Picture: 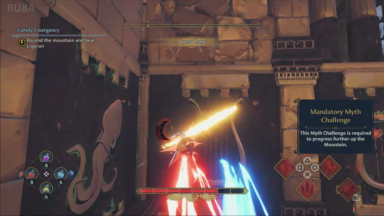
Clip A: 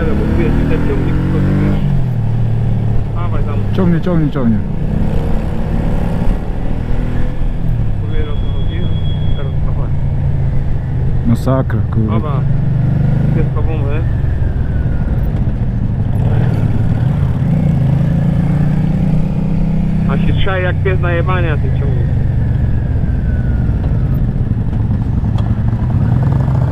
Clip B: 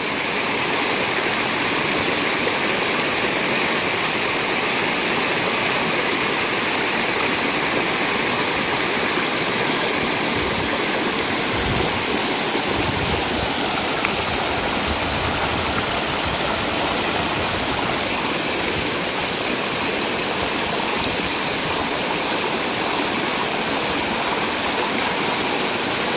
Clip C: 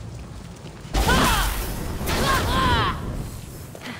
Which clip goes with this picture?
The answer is C